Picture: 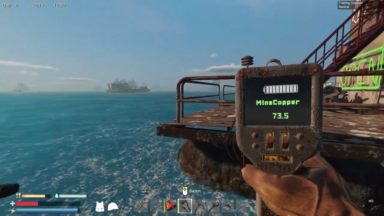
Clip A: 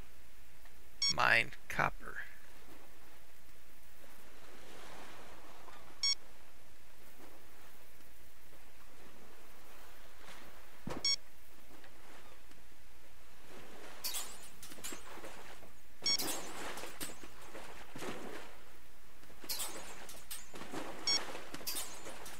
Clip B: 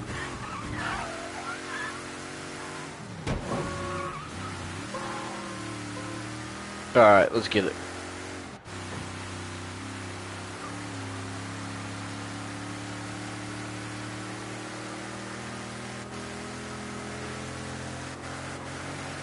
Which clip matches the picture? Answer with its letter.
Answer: A